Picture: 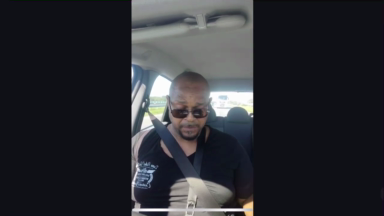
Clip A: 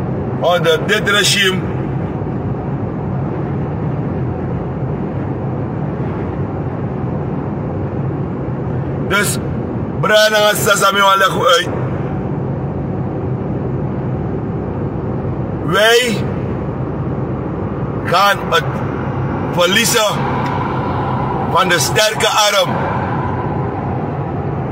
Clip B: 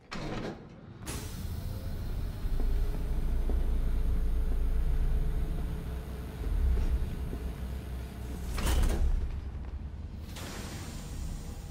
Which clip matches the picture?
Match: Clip A